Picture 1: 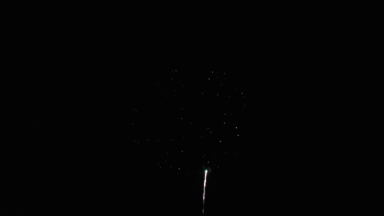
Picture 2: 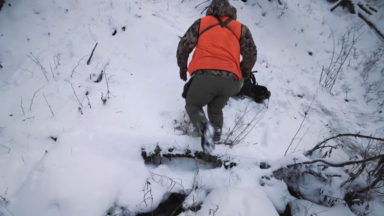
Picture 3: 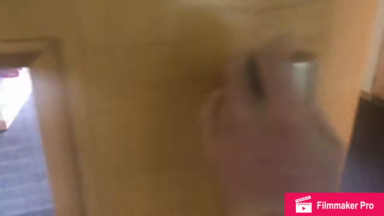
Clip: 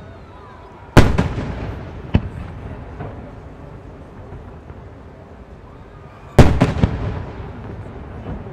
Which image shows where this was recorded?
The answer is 1